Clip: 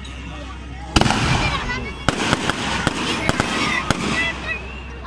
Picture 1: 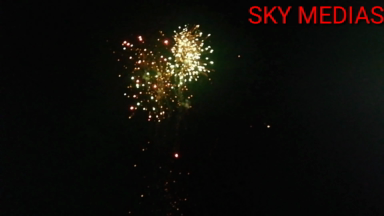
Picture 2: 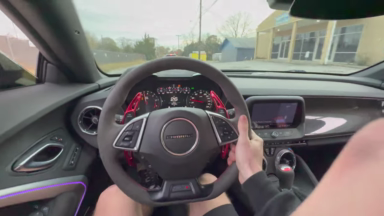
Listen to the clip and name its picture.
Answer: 1